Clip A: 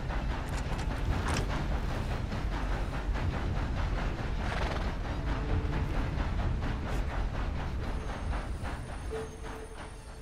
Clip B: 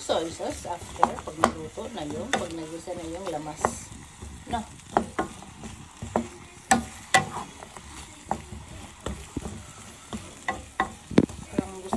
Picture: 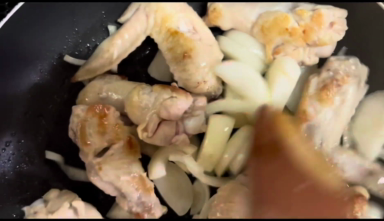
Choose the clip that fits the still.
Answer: B